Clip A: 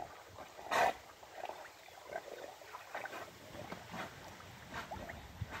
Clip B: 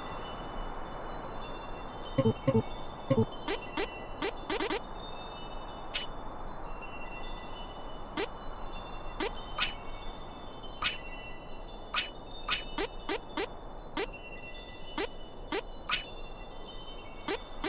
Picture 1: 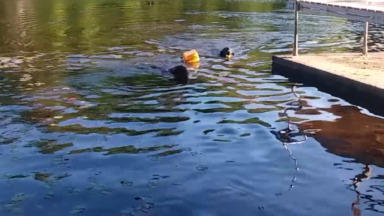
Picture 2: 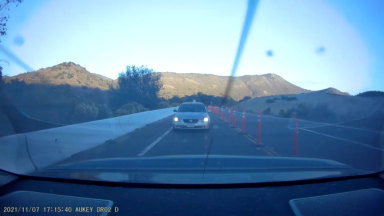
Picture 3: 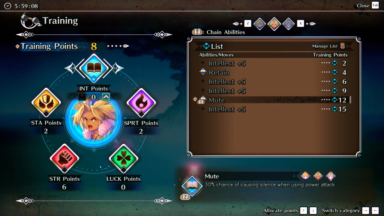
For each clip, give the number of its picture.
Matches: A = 1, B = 3